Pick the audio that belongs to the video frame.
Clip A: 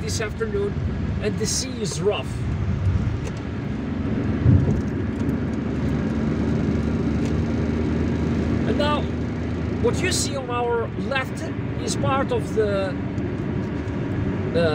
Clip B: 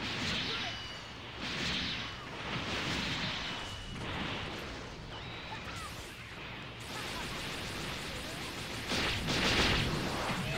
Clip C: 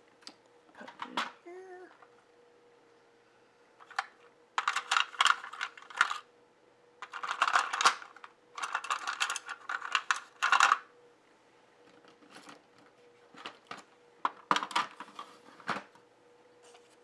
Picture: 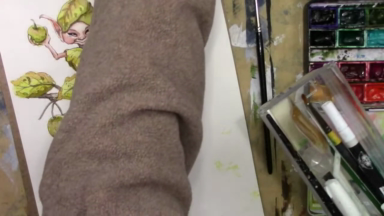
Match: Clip C